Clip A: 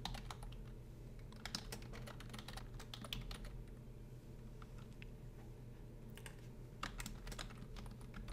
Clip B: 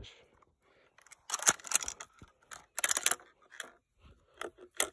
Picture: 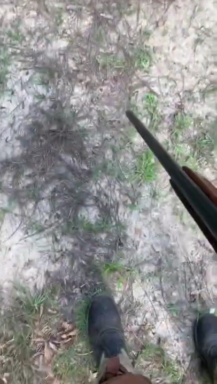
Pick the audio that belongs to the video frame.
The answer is B